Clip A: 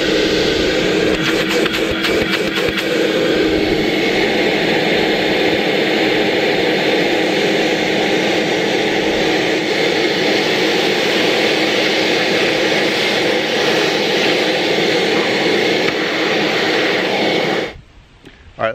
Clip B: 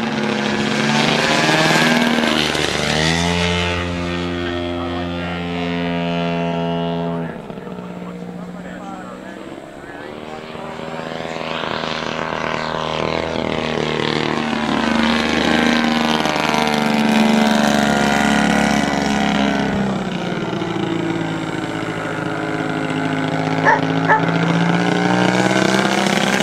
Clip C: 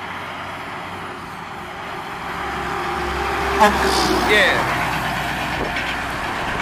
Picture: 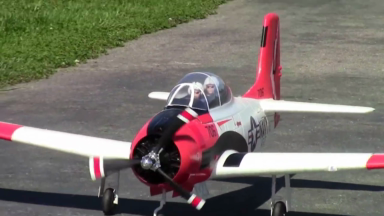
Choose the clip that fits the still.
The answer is B